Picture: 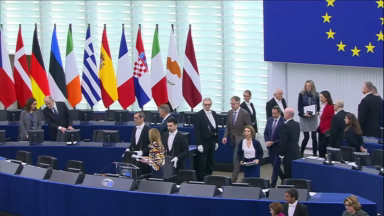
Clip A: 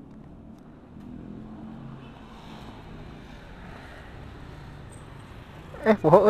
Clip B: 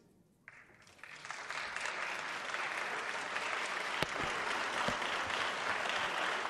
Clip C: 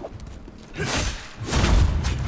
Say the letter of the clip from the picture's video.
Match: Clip B